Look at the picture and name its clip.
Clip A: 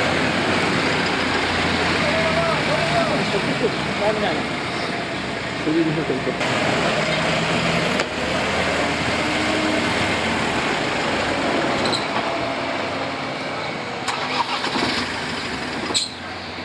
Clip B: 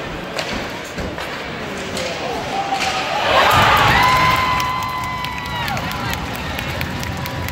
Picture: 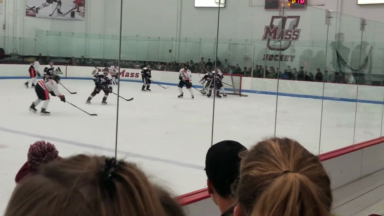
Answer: B